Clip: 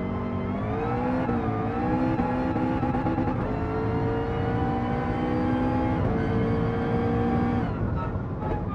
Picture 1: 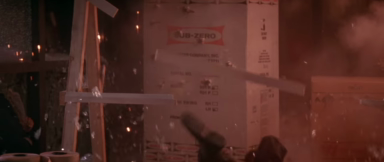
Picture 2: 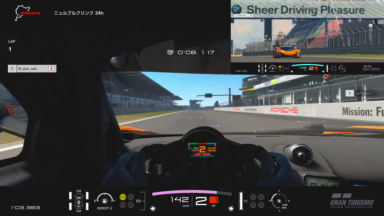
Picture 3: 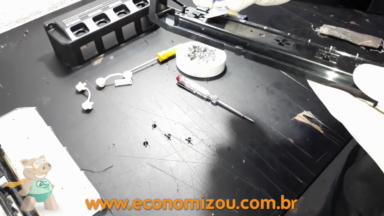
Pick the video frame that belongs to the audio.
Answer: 2